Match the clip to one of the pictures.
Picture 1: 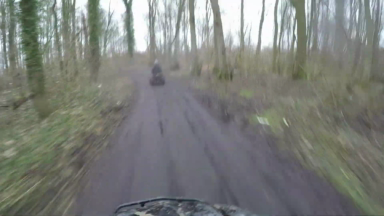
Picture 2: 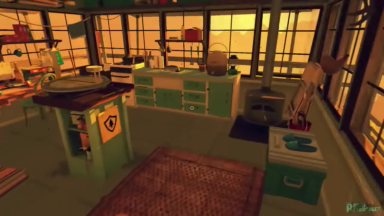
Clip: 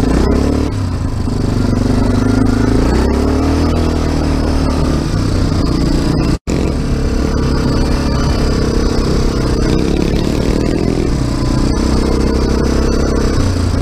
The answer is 1